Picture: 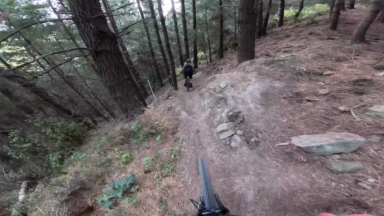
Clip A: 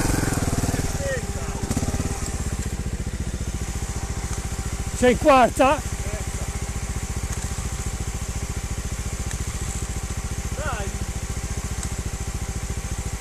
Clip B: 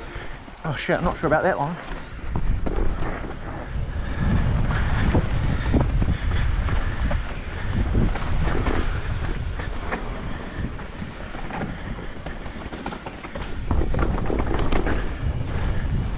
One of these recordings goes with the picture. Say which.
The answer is B